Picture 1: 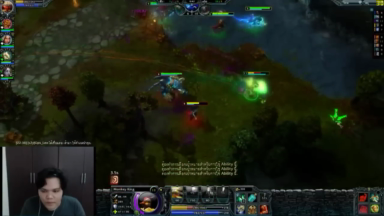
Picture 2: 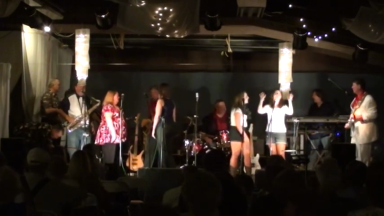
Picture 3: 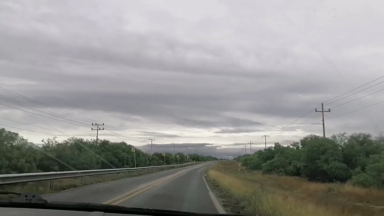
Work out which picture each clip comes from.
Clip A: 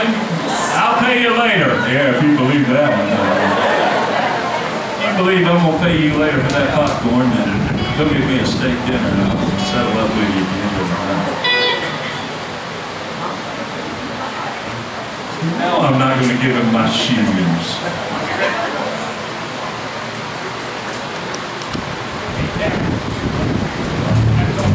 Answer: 2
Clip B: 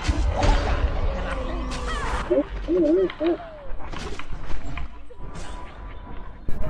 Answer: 1